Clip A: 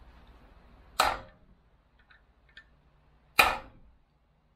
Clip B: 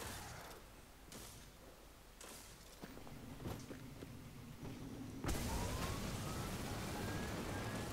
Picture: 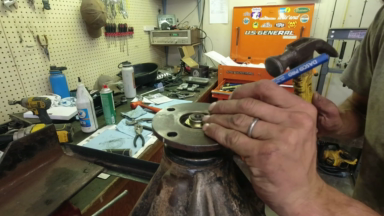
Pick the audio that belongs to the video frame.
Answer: A